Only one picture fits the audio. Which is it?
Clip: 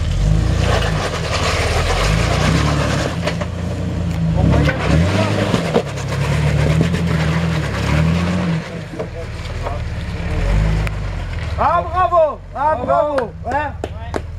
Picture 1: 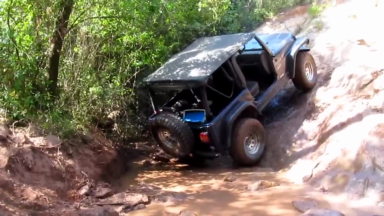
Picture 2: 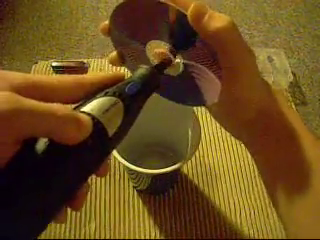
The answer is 1